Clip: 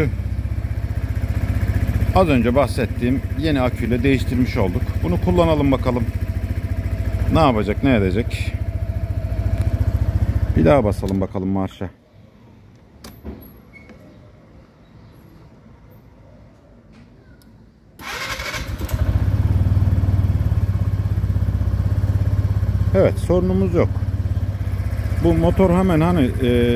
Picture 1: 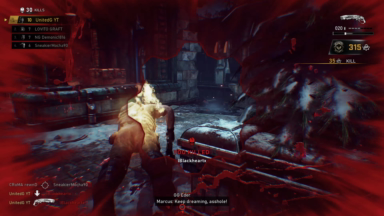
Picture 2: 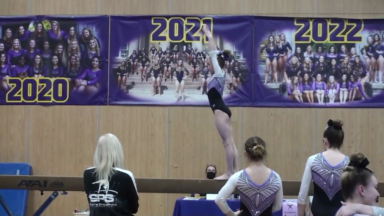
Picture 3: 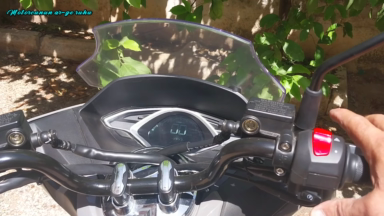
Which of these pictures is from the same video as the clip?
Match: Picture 3